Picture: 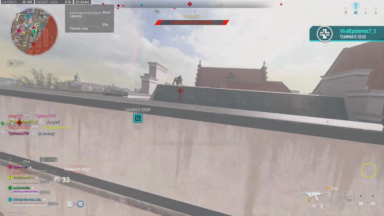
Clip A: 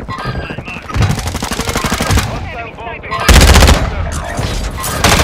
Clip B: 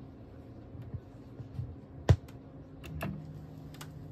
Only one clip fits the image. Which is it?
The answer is A